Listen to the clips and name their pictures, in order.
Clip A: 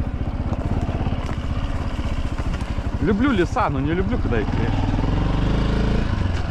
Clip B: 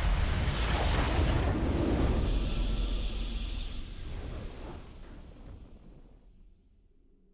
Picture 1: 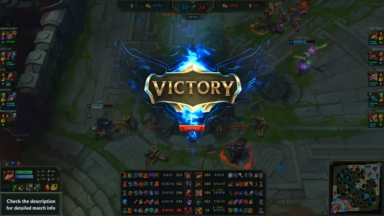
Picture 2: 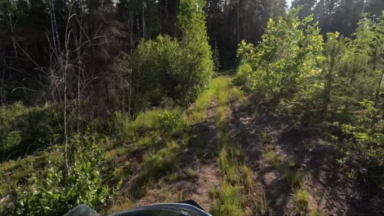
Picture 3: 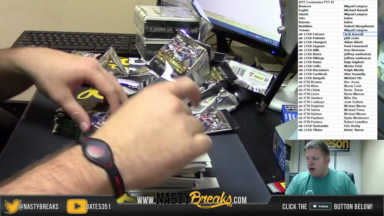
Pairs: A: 2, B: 1